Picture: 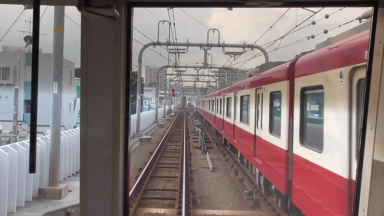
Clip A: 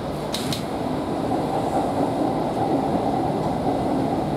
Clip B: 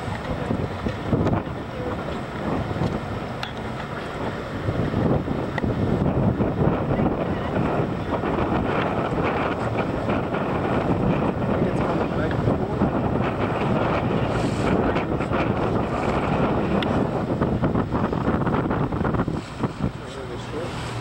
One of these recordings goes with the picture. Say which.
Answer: A